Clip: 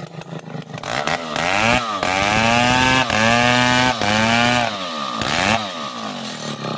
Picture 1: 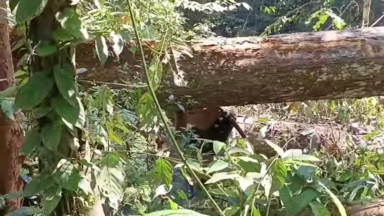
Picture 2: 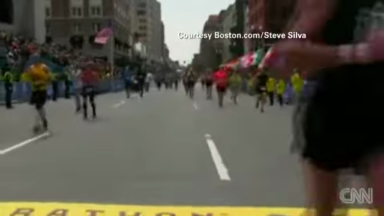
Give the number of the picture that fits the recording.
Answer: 1